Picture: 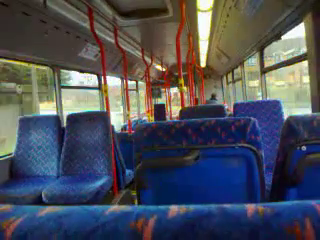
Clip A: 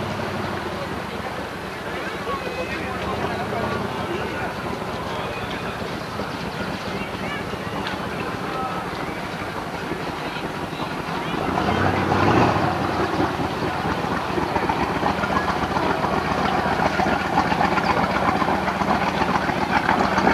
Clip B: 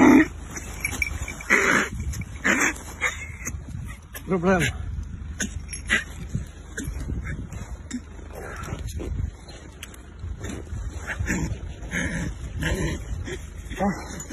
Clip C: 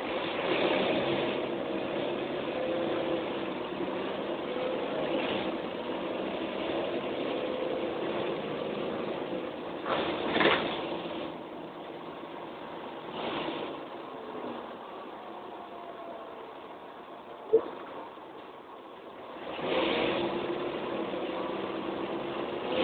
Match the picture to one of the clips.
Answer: C